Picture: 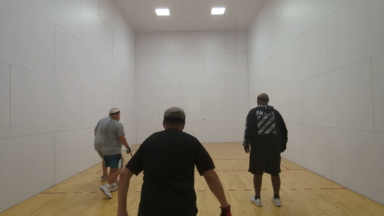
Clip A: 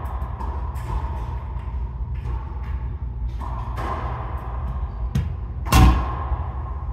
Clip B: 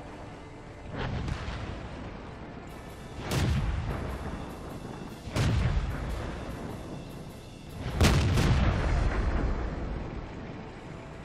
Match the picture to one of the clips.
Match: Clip A